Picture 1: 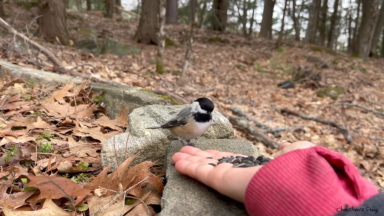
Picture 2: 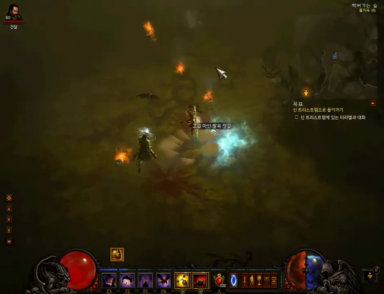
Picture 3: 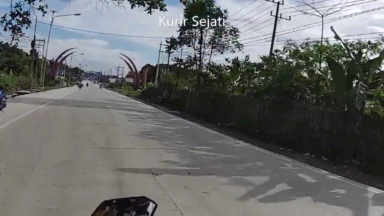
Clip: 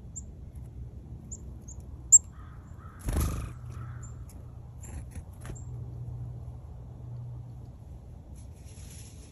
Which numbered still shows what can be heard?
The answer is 1